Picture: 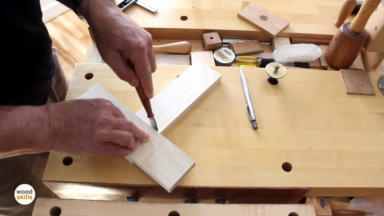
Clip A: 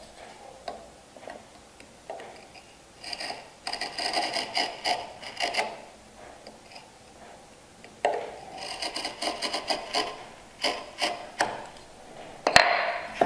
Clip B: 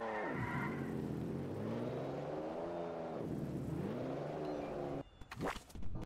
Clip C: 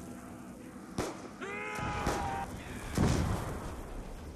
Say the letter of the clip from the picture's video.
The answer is A